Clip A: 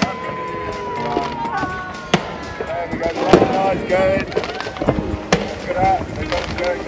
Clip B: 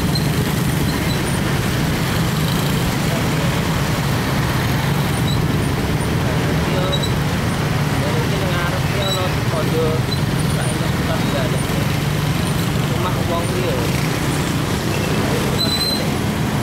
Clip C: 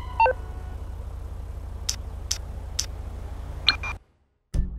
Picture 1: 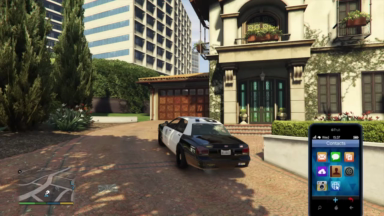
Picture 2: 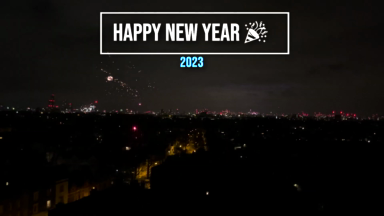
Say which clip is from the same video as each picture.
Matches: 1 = C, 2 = A